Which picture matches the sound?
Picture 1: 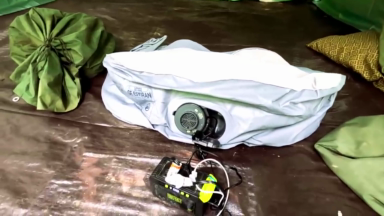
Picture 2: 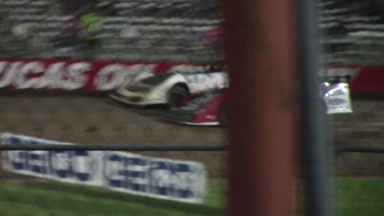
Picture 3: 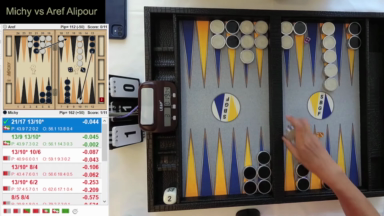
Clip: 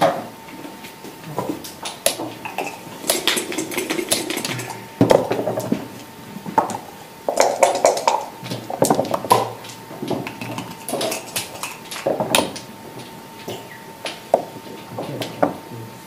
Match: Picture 3